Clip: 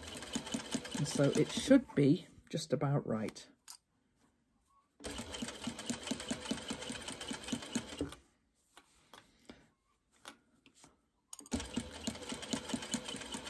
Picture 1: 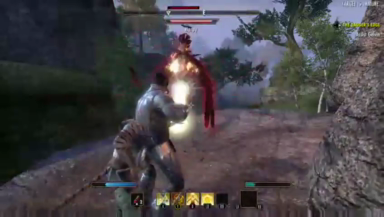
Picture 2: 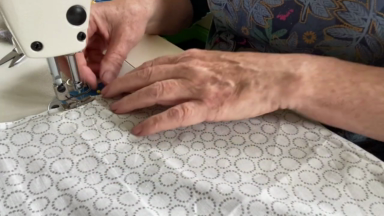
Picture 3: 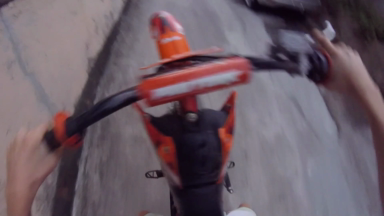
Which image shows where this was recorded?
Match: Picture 2